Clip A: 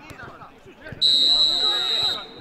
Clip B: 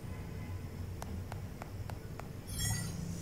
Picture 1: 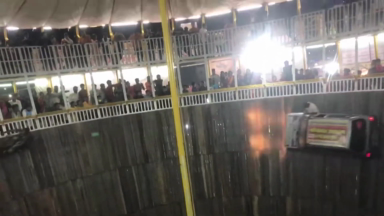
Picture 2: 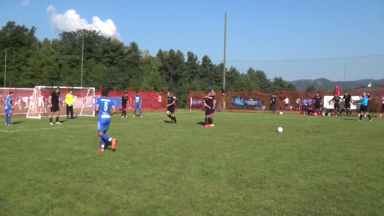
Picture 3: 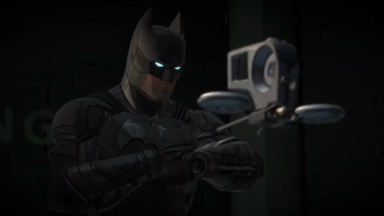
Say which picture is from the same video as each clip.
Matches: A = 2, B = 3